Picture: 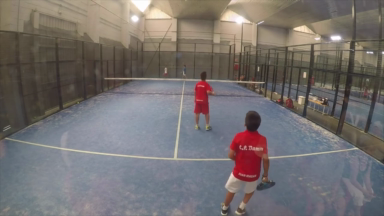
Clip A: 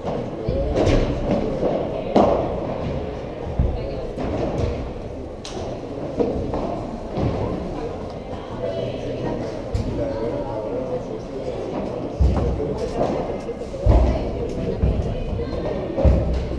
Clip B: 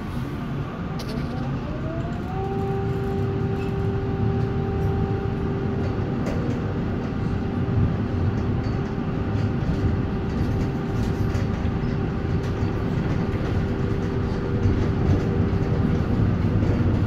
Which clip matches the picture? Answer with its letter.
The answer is A